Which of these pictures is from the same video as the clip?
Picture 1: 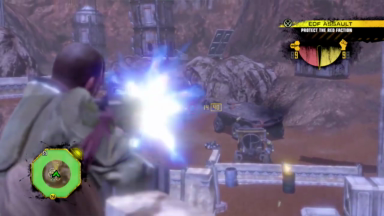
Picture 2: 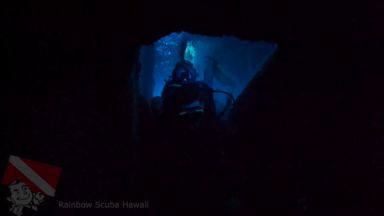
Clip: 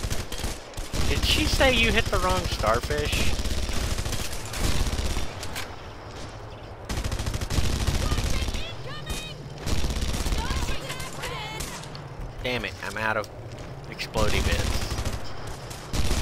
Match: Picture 1